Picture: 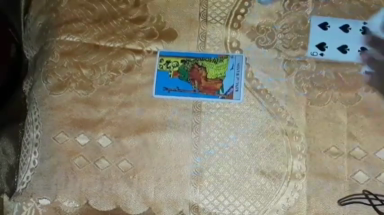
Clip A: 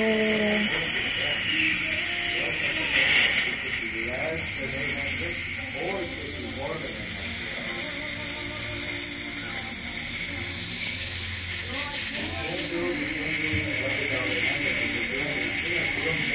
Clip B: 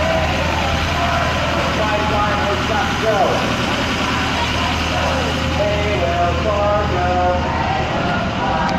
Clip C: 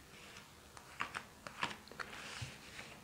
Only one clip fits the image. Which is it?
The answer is C